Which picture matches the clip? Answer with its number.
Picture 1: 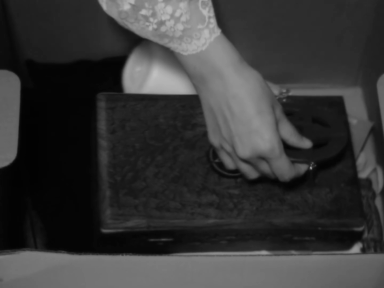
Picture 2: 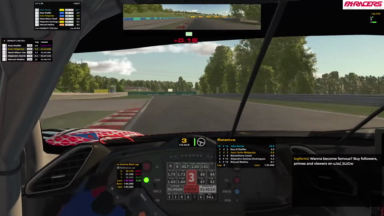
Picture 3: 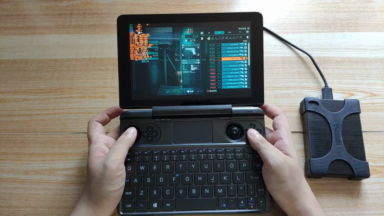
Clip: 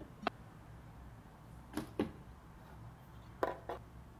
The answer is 1